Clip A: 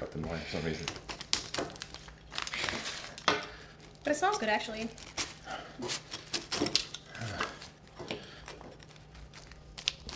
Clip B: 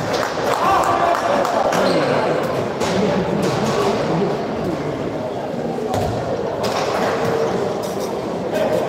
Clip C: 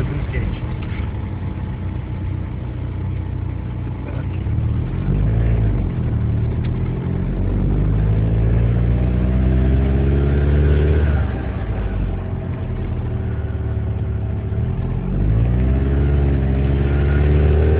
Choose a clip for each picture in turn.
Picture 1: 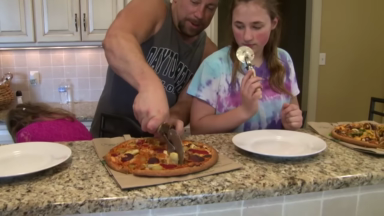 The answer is A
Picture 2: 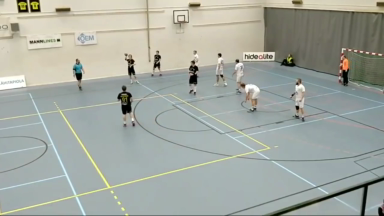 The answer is B